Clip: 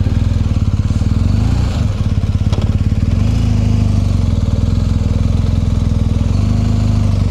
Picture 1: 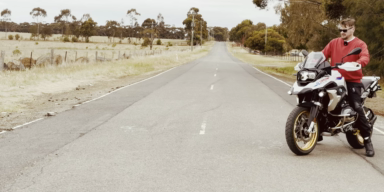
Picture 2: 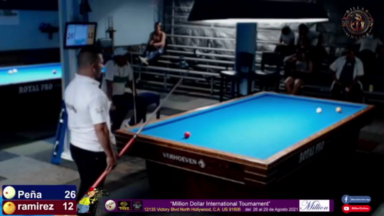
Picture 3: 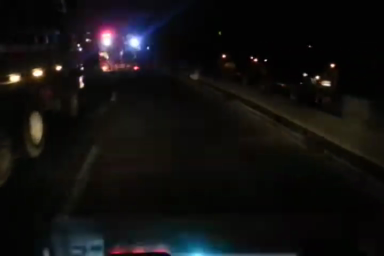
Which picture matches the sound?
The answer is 1